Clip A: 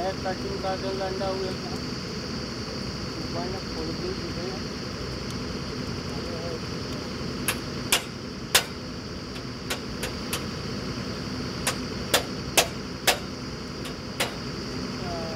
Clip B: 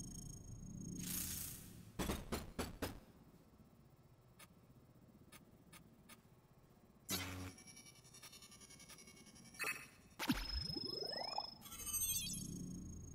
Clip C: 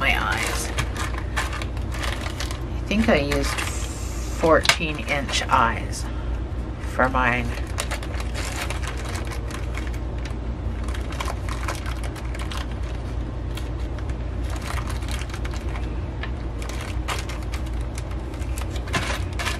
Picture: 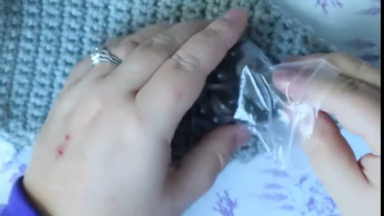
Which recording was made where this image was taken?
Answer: C